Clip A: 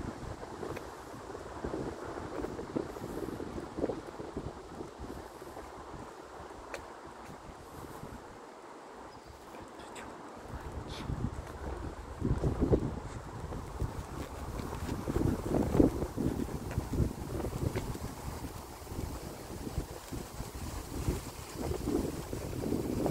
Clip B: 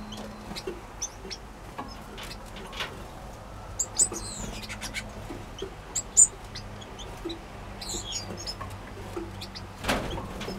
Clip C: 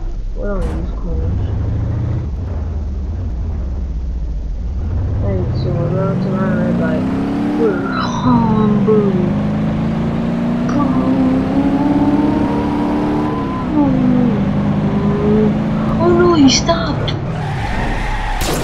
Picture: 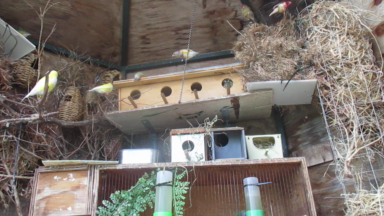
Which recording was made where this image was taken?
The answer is B